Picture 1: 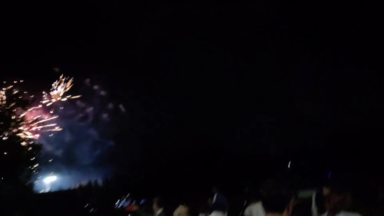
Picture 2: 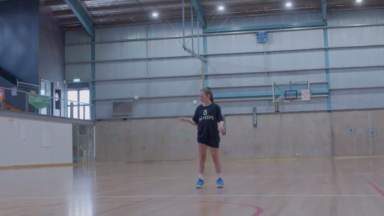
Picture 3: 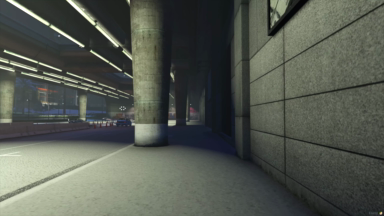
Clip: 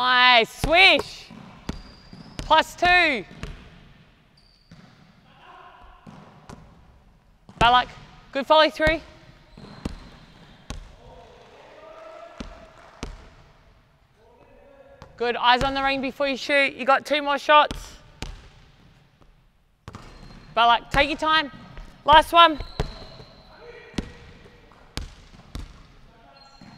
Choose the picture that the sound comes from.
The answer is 2